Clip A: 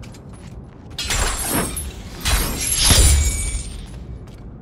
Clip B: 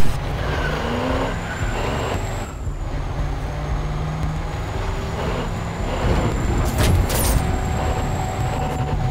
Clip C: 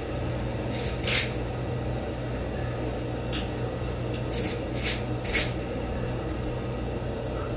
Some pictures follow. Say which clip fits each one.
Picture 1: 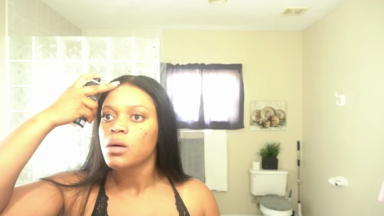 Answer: C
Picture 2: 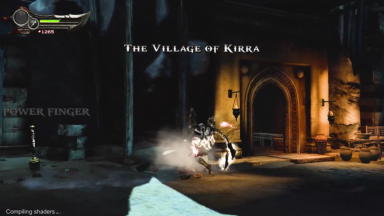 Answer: A